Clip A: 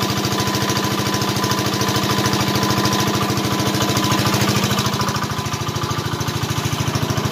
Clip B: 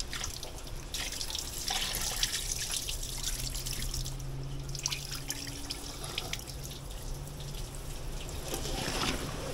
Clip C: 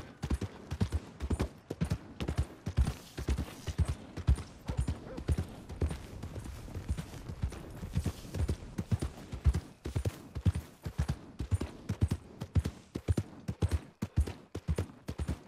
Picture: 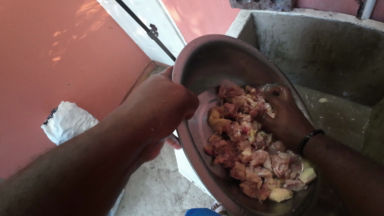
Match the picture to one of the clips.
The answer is B